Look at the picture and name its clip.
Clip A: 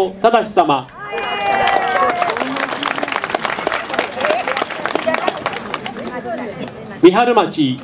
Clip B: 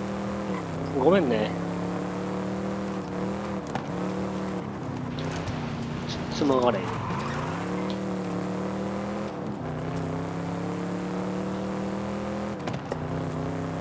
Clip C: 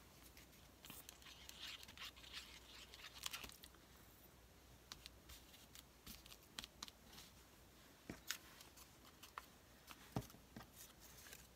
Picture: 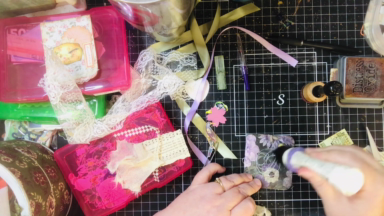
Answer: C